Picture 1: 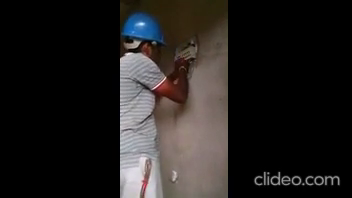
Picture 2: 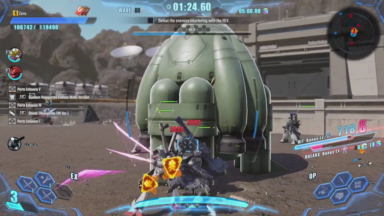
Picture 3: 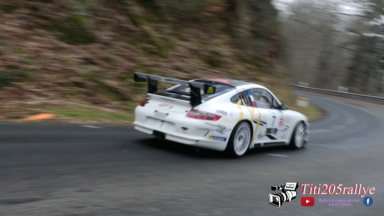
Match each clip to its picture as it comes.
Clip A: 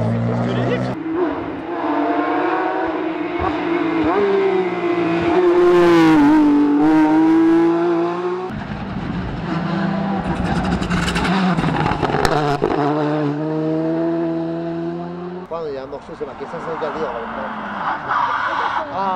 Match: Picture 3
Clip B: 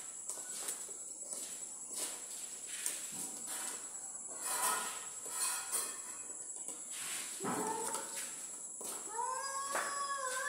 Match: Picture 1